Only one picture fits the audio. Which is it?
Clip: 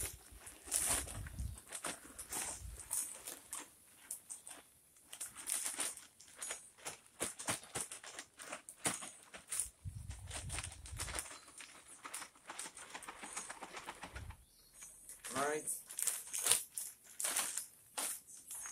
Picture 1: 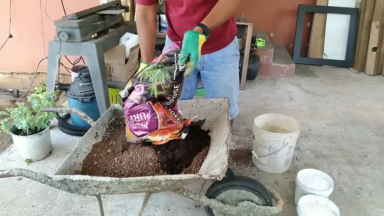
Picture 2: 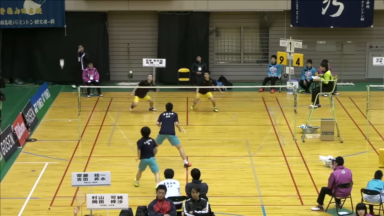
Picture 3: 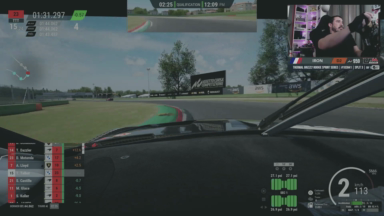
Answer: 1